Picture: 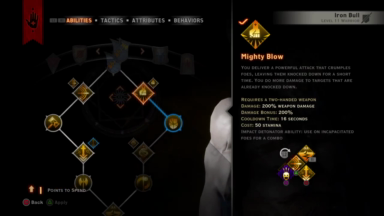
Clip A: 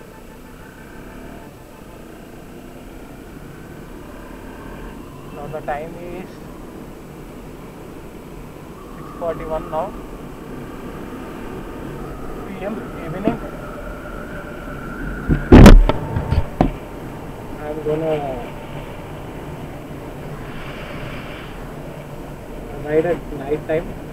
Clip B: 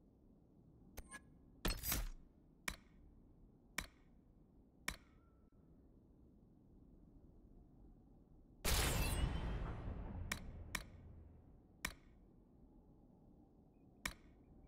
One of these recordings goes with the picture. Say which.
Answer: B